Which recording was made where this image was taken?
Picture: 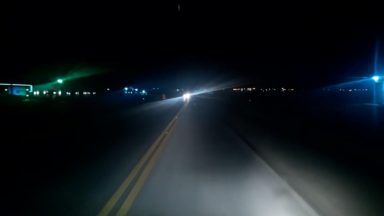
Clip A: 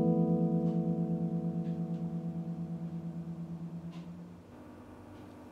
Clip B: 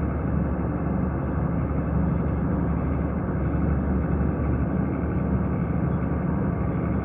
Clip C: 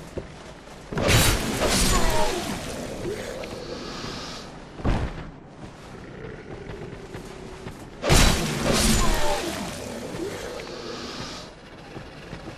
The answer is B